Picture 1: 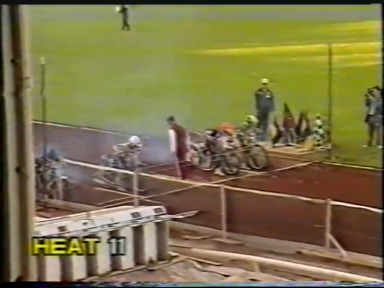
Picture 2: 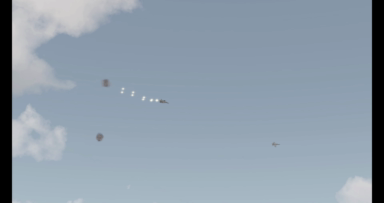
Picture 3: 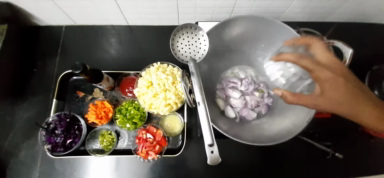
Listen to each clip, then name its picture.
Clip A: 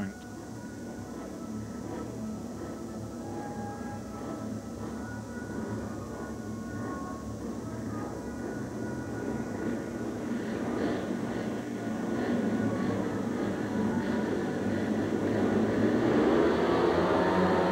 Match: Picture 1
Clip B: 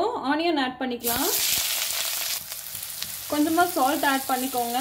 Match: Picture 3